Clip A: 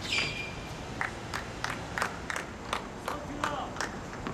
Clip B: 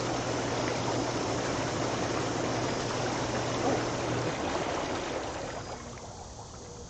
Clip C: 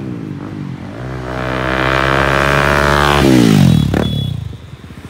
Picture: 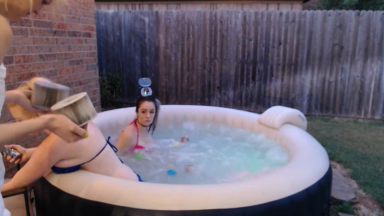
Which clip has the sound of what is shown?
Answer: B